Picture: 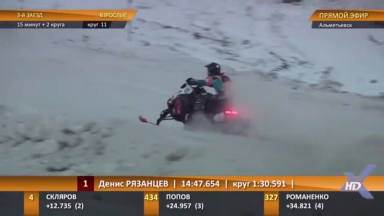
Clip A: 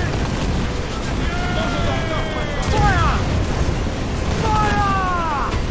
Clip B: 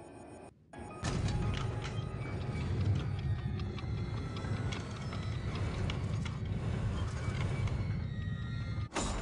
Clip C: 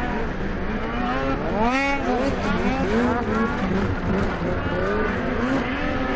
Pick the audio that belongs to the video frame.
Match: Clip C